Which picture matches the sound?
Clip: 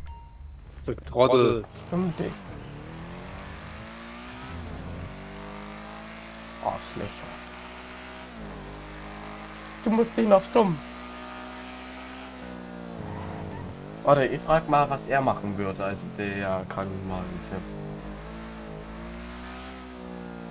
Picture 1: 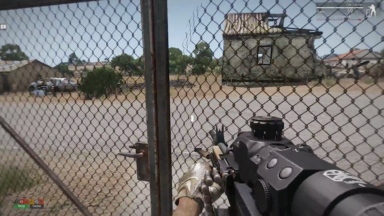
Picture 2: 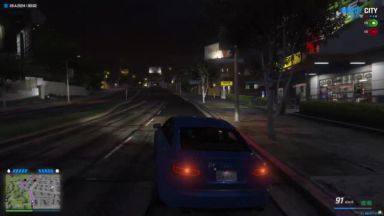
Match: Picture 2